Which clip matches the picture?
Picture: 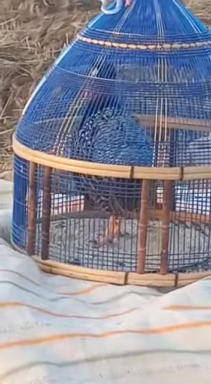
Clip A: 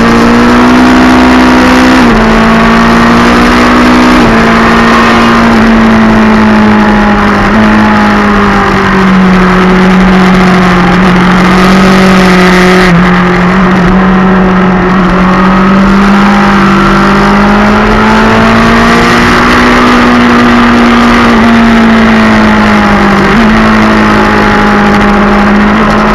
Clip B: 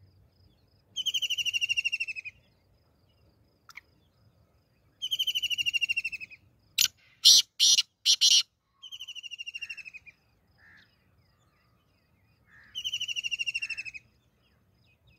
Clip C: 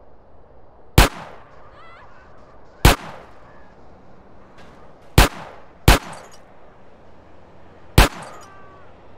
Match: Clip B